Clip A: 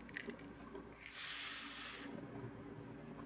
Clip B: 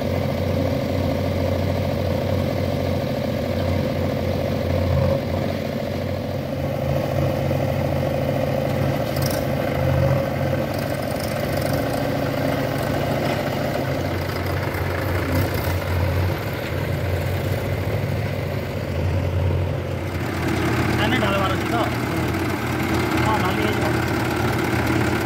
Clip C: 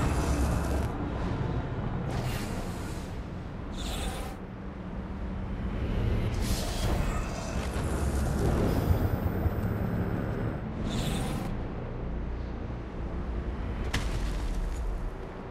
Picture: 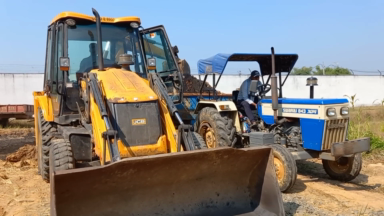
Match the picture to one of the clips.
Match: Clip B